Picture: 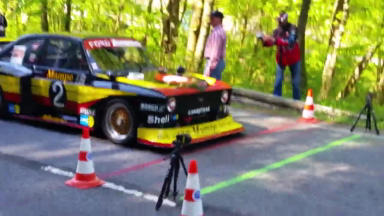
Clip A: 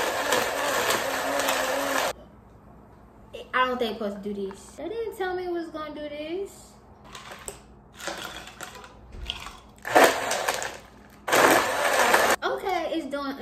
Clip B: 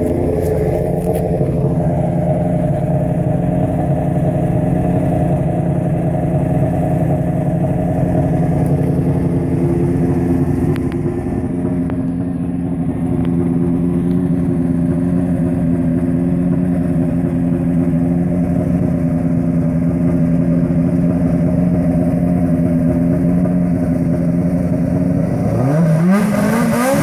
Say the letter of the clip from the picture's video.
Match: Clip B